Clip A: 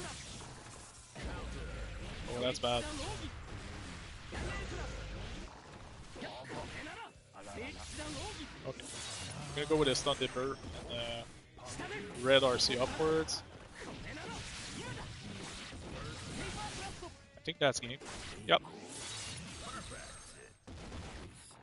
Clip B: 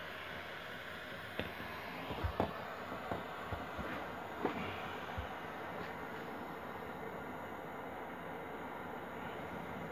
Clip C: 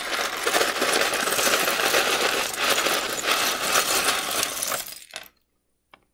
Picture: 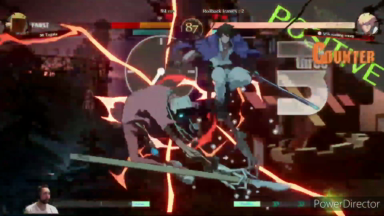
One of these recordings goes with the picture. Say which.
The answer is A